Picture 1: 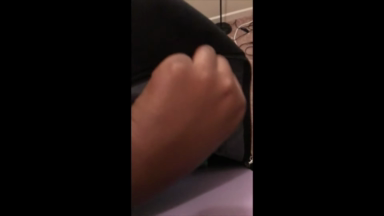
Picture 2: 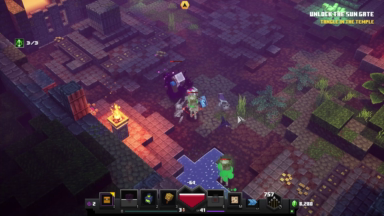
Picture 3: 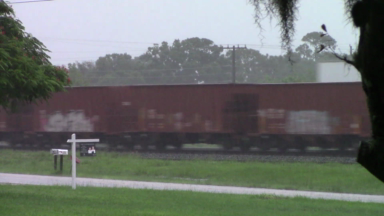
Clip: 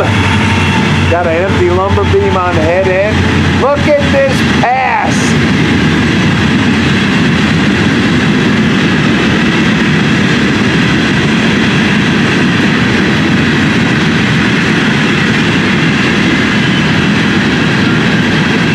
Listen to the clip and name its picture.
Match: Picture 3